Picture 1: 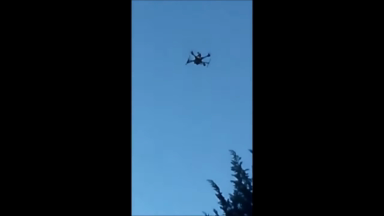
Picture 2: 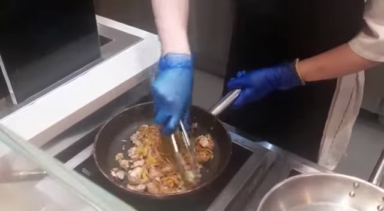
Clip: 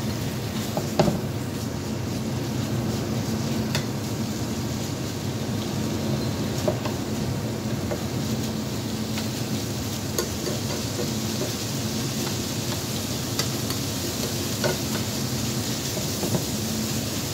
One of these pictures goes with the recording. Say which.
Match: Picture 2